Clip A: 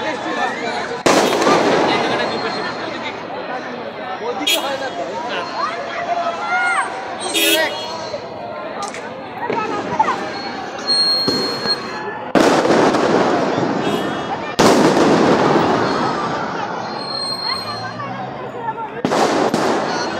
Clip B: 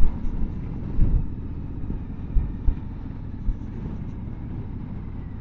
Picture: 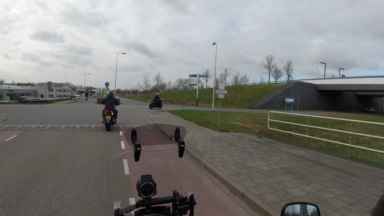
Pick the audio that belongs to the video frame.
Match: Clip B